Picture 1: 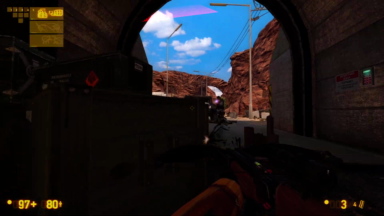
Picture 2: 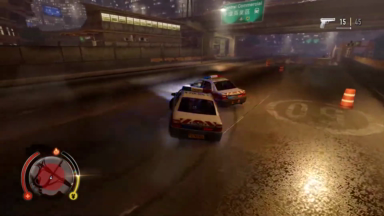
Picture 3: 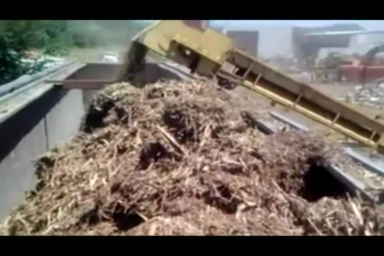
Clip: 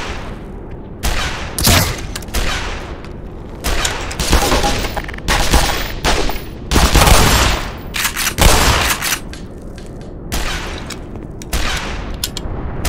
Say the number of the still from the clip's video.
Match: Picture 1